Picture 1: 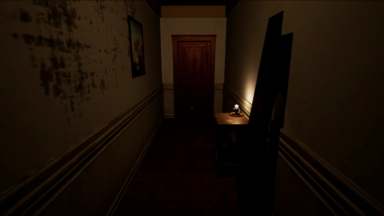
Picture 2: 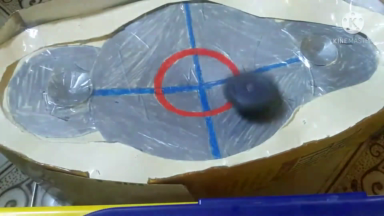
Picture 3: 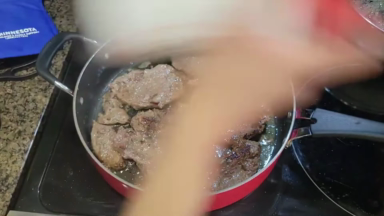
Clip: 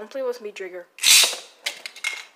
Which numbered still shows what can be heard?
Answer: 2